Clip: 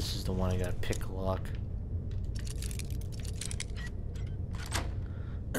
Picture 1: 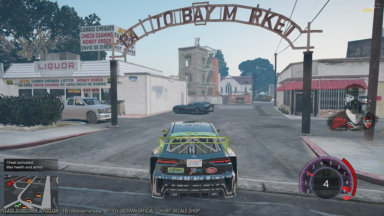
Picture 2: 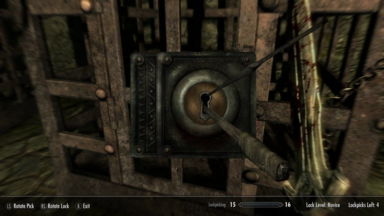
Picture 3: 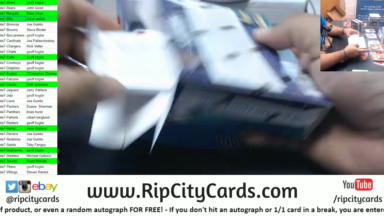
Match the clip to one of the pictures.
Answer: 2